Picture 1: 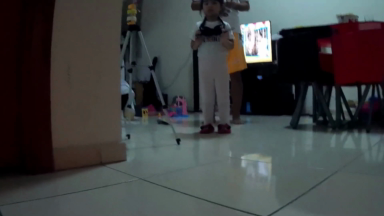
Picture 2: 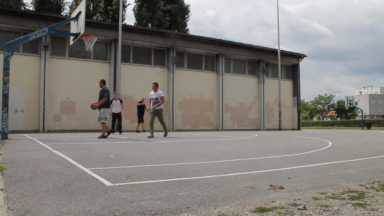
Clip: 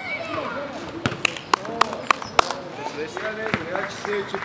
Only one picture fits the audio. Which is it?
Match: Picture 2